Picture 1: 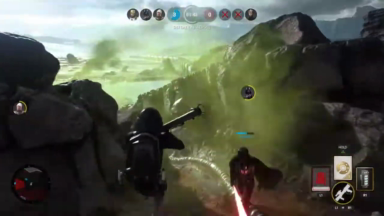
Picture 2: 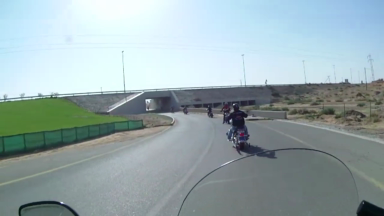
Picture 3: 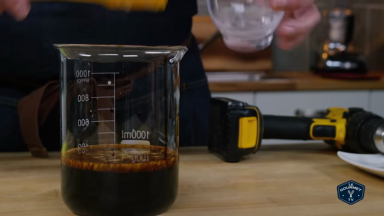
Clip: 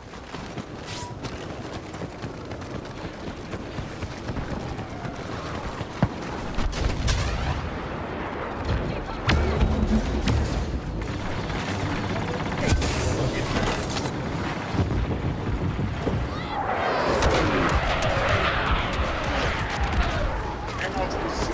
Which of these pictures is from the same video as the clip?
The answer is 1